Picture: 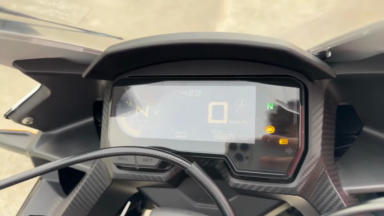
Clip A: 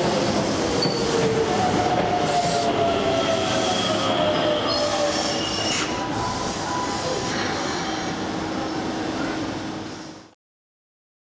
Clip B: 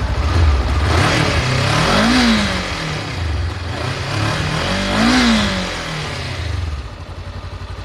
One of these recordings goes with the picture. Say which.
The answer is B